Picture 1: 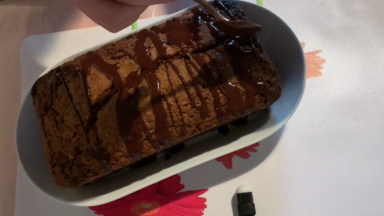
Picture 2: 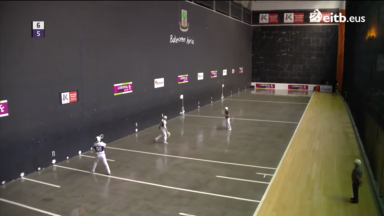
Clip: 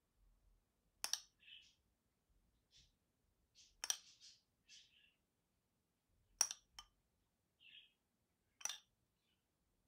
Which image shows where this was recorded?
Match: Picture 1